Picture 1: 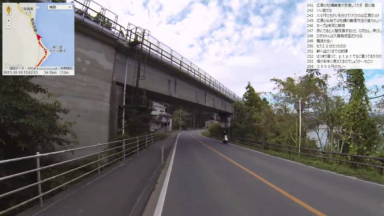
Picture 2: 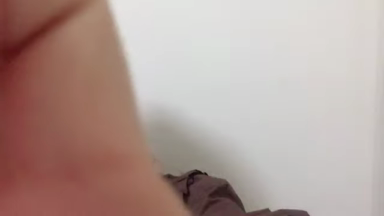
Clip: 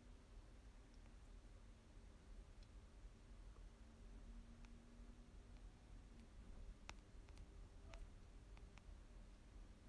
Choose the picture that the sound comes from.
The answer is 2